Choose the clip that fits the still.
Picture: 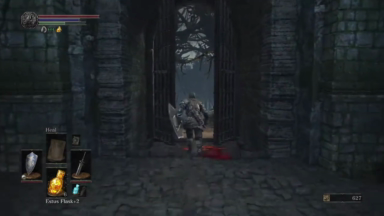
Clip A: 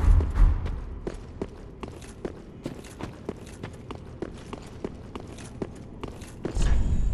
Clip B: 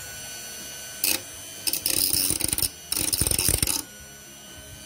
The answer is A